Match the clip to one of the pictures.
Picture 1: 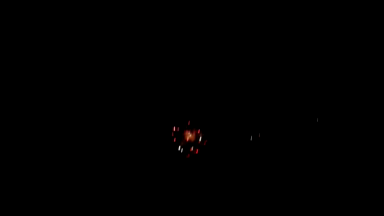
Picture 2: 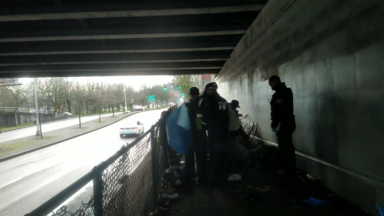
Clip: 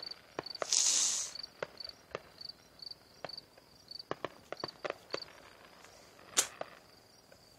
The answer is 1